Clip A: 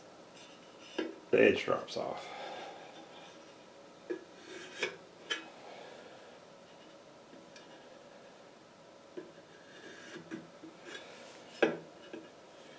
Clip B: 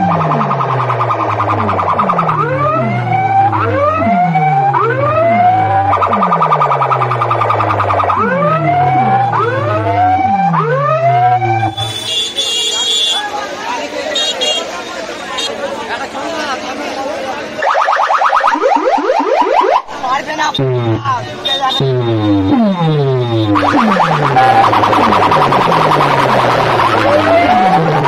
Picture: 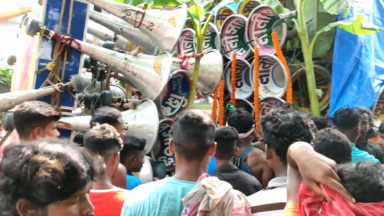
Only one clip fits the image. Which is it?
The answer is B